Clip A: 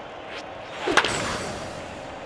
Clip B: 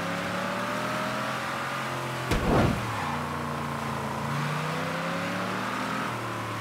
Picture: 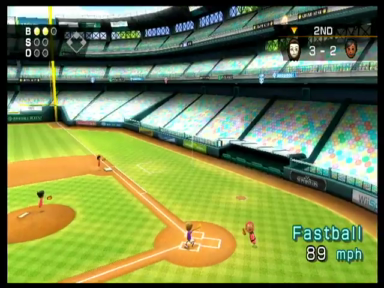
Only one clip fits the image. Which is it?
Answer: A